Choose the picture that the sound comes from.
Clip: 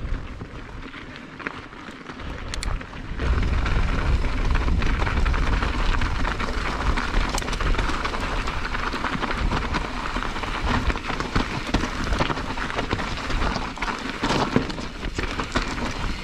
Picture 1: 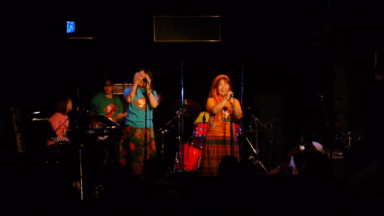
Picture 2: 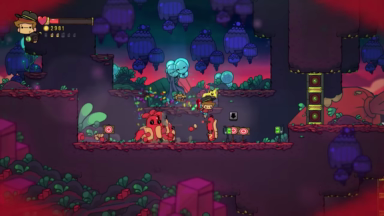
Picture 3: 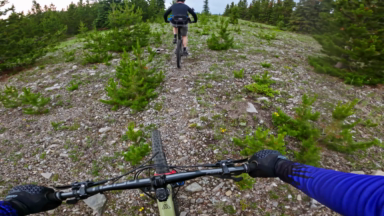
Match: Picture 3